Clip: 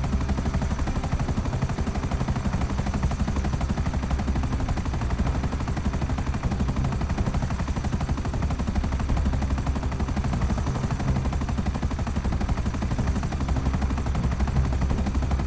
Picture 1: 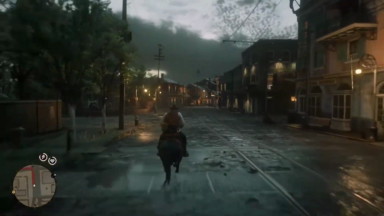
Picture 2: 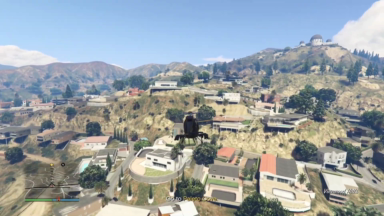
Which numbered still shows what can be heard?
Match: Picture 2